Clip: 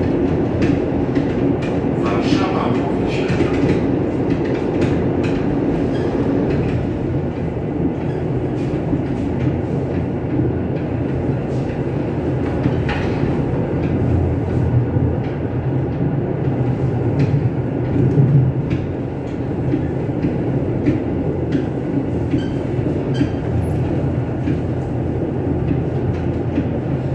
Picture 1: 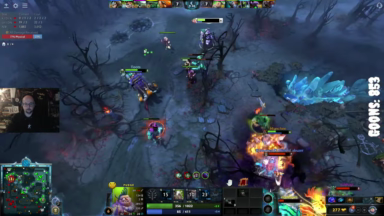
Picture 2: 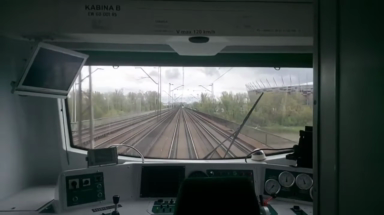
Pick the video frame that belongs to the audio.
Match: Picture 2